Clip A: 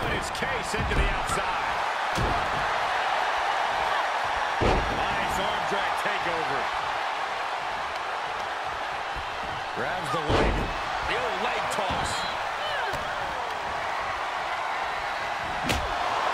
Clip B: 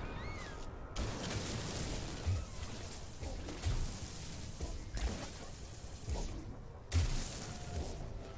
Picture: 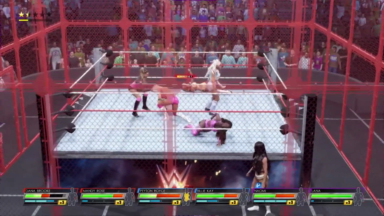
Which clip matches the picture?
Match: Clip A